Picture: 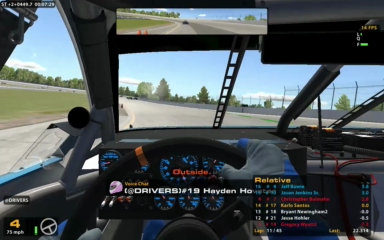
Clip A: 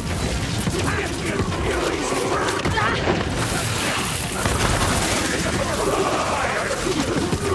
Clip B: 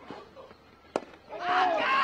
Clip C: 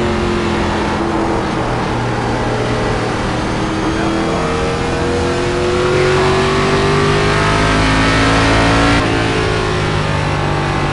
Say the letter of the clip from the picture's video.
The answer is C